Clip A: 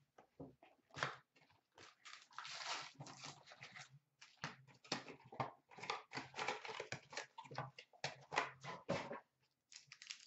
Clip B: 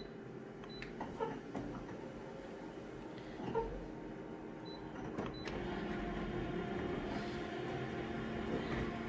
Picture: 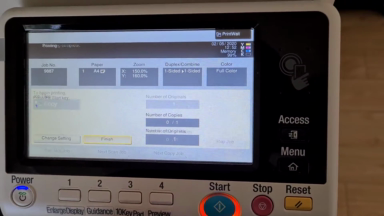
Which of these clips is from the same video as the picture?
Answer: B